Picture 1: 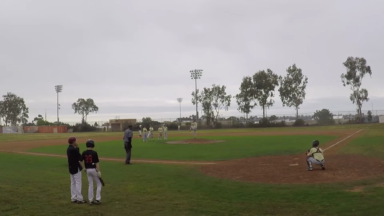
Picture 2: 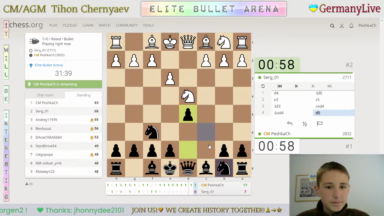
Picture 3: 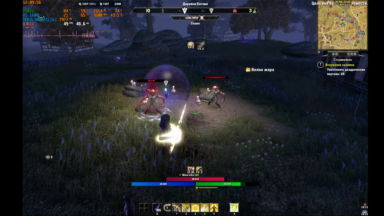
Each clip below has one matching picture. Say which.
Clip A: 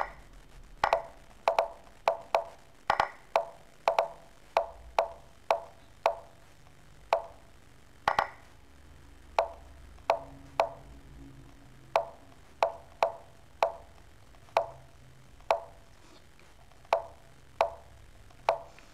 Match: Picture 2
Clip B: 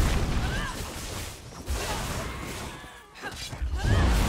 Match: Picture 3